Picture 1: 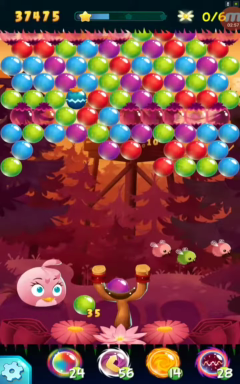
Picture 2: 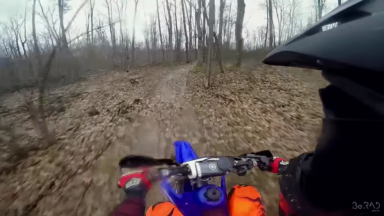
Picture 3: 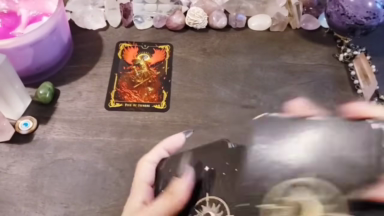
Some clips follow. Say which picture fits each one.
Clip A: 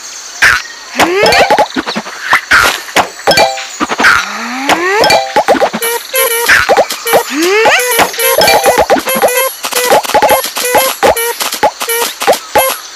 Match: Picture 1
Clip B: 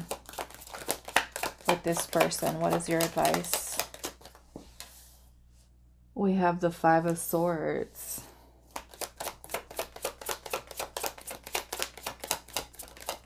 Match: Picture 3